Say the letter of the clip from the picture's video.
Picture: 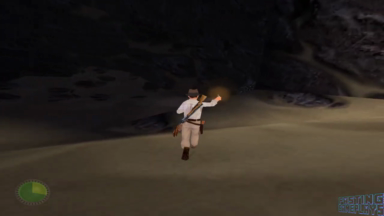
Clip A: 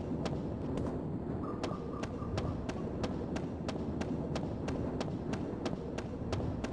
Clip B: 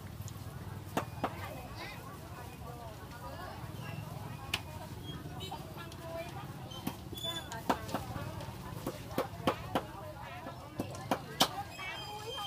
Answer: A